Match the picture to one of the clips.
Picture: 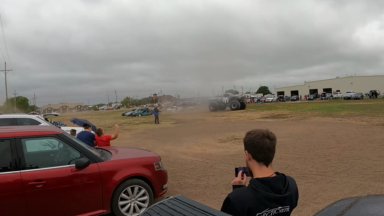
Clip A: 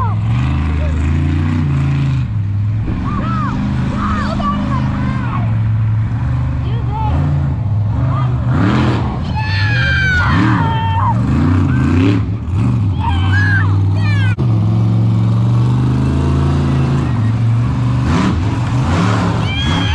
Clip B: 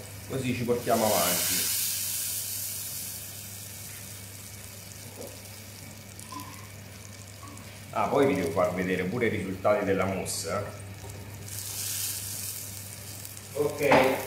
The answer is A